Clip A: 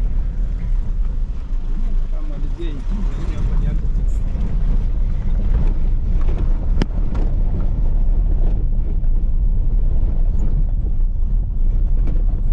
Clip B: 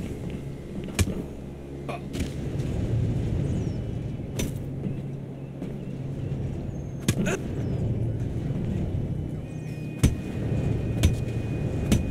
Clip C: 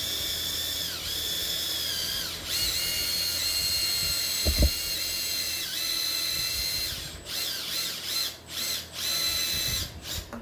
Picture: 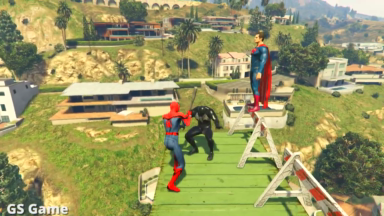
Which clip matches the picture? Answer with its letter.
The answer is B